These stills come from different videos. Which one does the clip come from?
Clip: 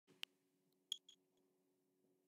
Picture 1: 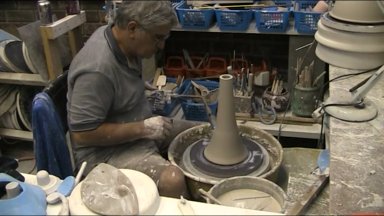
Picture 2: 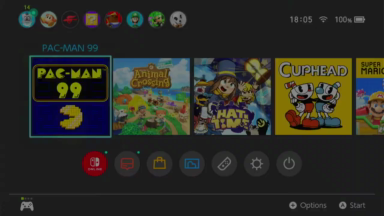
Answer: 2